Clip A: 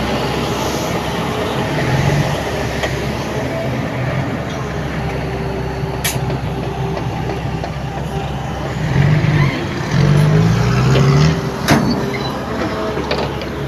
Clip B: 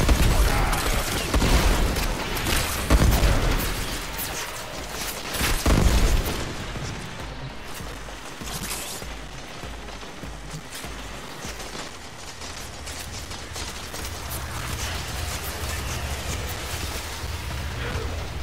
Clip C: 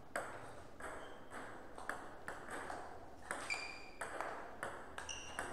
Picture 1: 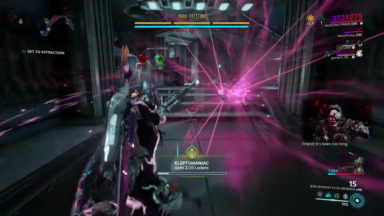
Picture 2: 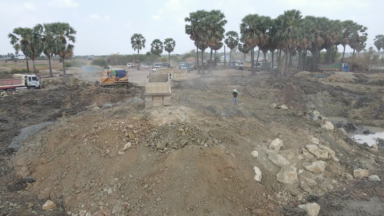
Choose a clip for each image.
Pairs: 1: B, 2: A